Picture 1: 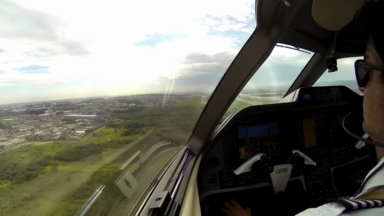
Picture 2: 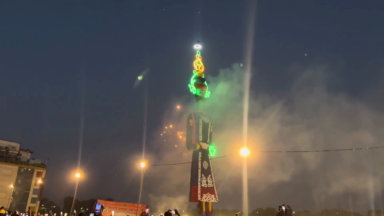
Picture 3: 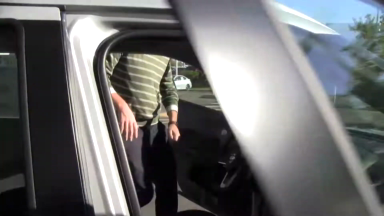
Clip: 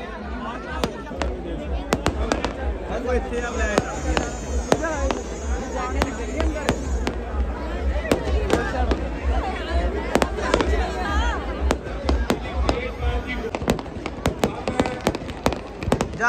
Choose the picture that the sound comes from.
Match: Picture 2